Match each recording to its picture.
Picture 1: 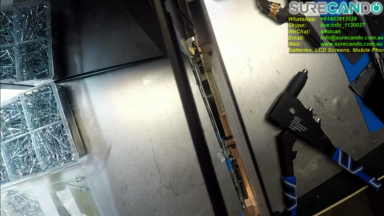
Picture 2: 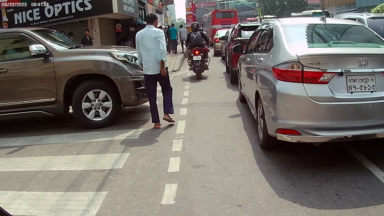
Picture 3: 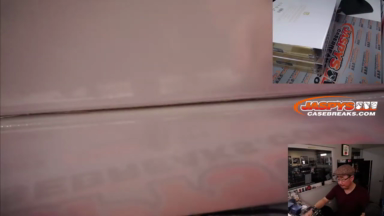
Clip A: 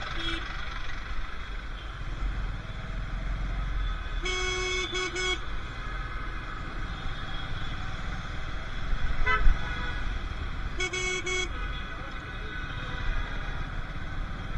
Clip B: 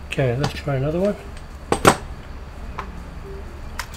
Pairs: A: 2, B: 1